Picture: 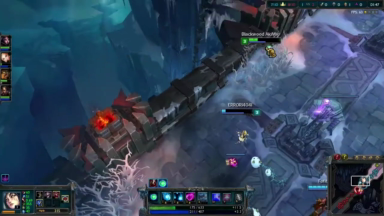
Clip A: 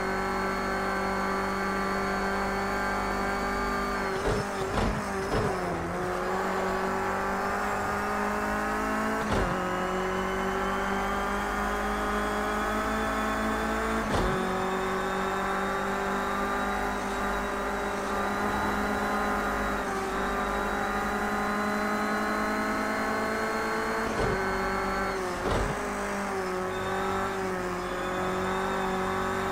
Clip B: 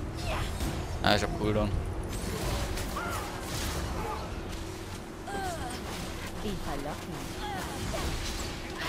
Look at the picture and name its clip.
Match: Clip B